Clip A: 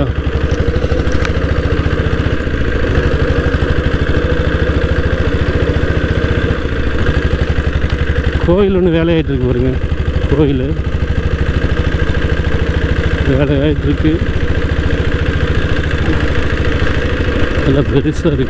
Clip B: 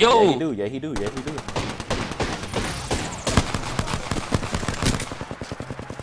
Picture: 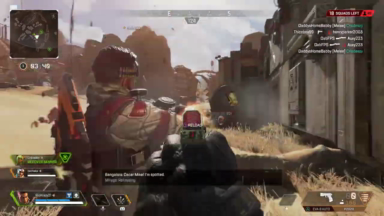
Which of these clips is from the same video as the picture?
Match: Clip B